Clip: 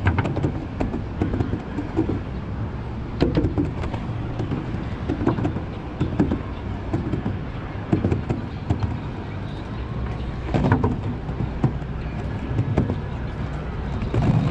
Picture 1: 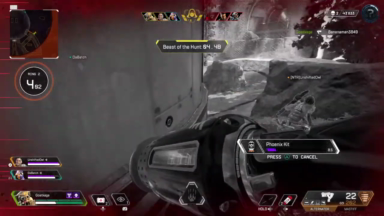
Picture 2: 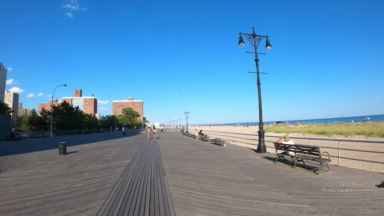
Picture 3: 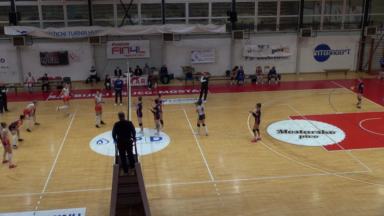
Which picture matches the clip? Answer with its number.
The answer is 2